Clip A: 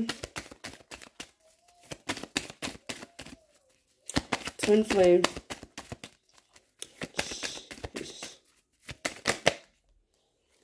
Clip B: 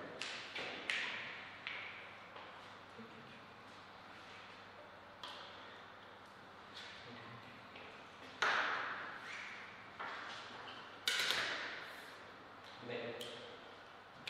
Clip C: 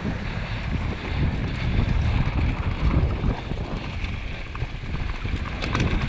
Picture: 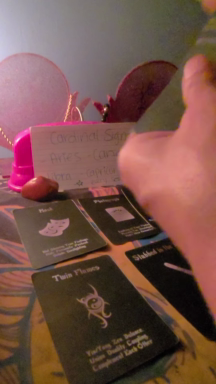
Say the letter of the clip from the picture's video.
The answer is A